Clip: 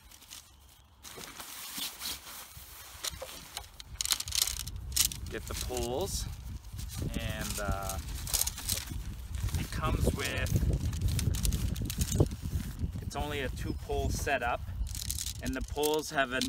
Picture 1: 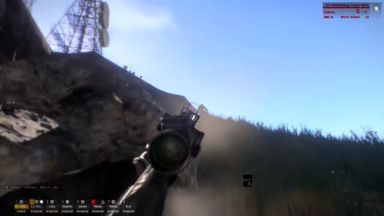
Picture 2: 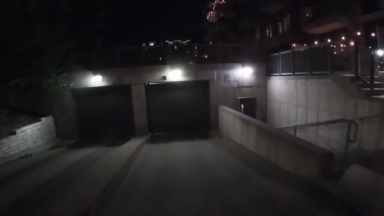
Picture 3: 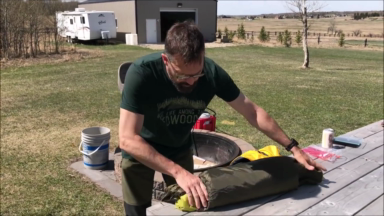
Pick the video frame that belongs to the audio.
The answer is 3